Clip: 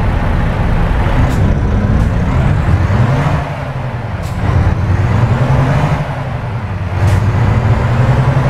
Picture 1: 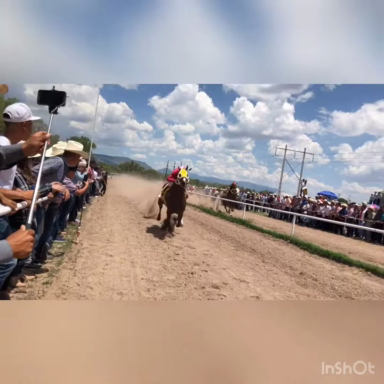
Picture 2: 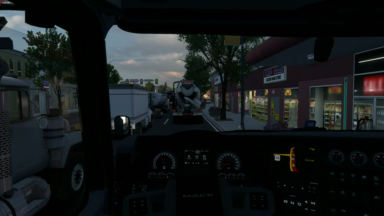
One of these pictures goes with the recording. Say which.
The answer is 2